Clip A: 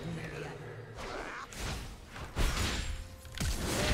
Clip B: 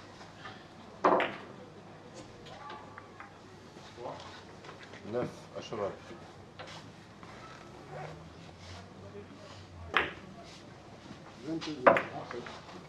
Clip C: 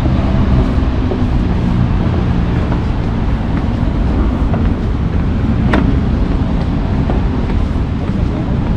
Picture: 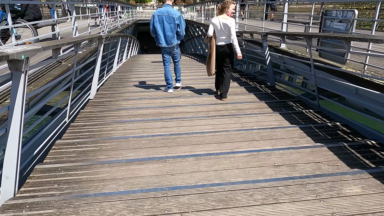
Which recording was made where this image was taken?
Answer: C